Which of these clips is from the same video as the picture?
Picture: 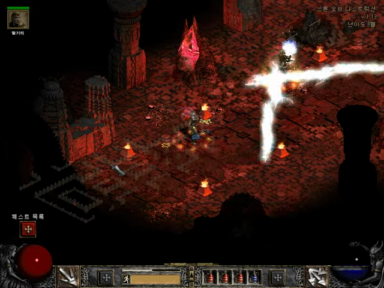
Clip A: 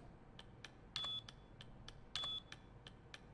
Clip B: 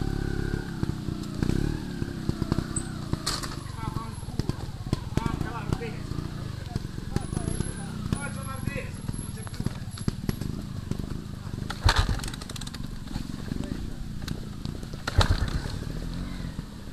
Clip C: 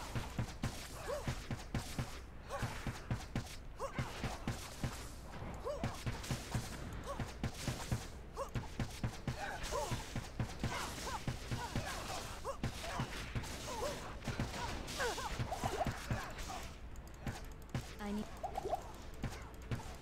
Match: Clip C